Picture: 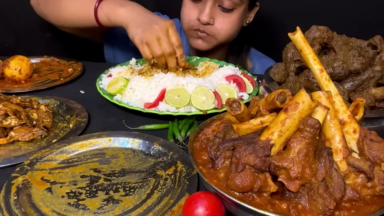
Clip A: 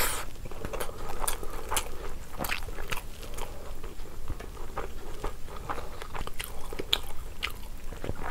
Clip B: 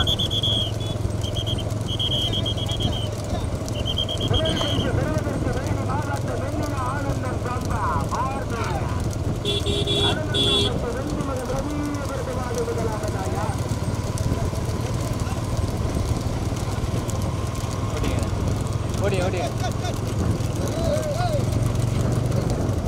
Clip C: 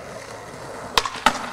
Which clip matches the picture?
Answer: A